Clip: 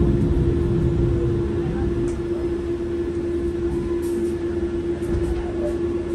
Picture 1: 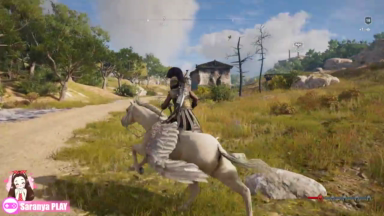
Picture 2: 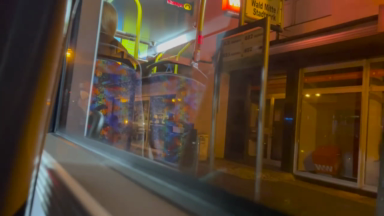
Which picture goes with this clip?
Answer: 2